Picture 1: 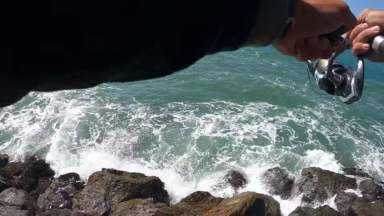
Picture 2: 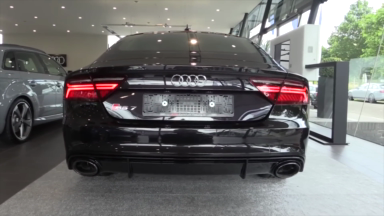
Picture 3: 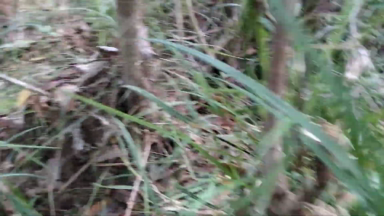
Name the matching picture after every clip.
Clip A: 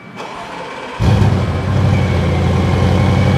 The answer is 2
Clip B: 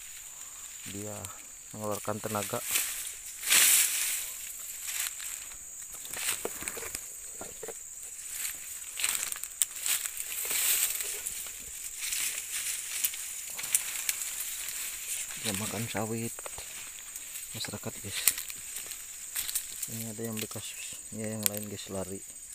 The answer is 3